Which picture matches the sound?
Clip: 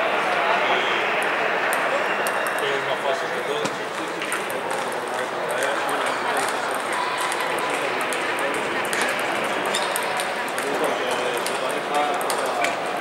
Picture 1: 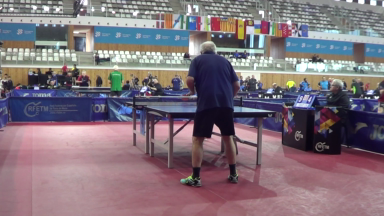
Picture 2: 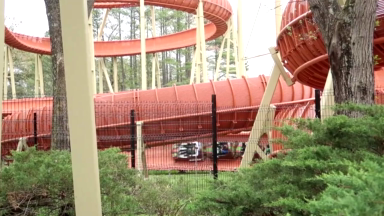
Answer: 1